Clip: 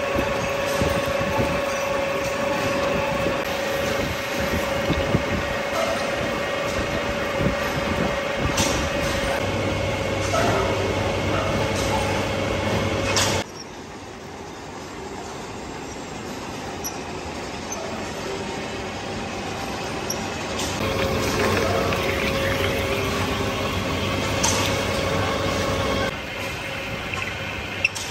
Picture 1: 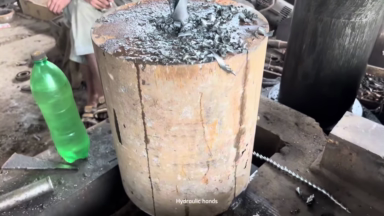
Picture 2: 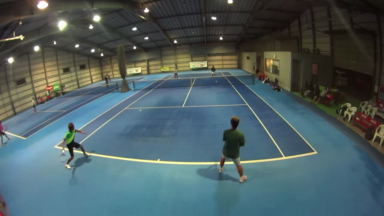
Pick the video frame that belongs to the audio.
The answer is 1